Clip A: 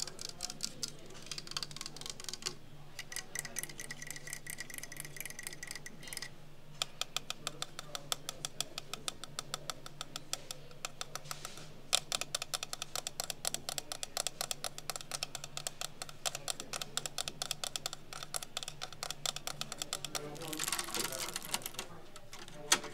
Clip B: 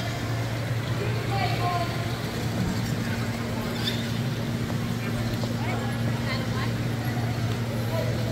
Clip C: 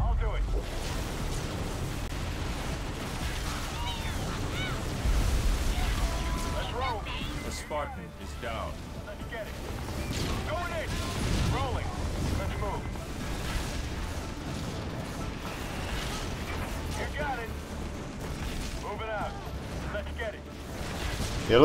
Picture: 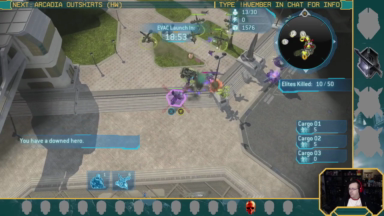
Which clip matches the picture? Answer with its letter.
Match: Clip C